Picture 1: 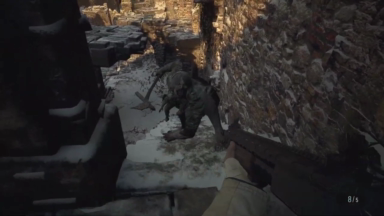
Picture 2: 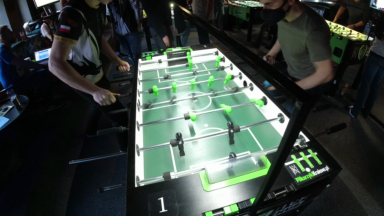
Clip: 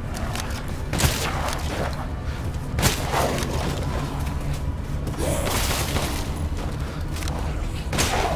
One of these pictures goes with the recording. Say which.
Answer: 1